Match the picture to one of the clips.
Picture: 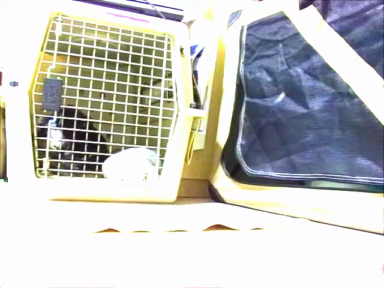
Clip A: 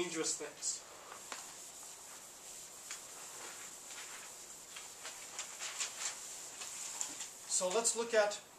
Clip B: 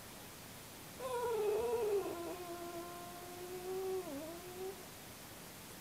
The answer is B